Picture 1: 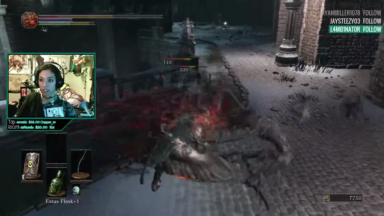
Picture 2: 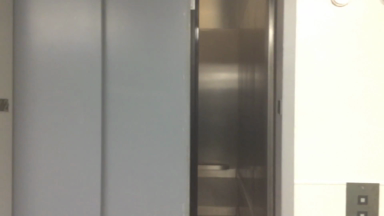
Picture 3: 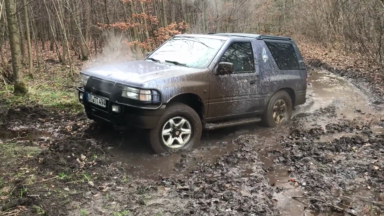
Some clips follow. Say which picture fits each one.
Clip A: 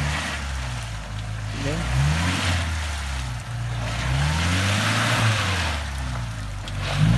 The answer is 3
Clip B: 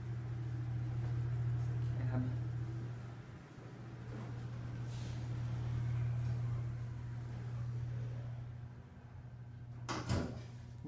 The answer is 2